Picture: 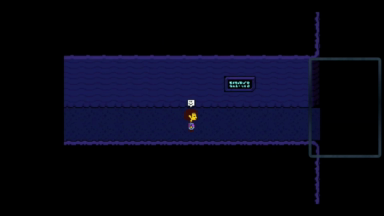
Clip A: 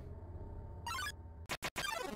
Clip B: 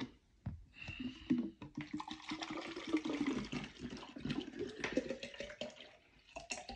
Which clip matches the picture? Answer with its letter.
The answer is A